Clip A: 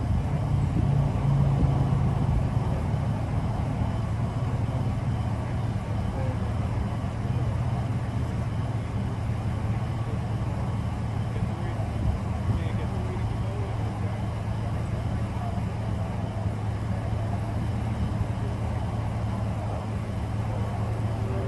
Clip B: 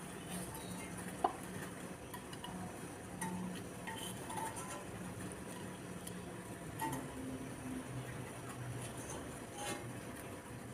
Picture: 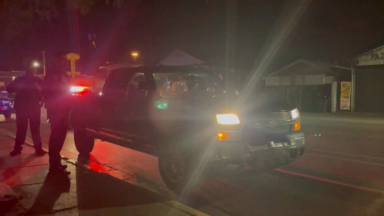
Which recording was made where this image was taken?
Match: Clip A